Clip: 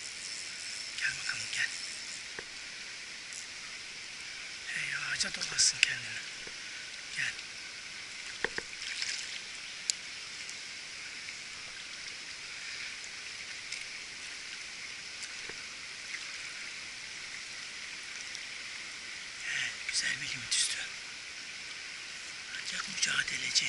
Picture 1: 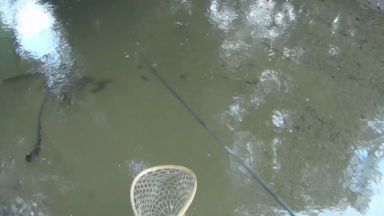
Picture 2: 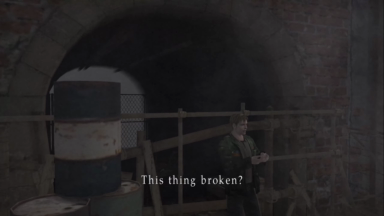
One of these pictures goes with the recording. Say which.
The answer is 1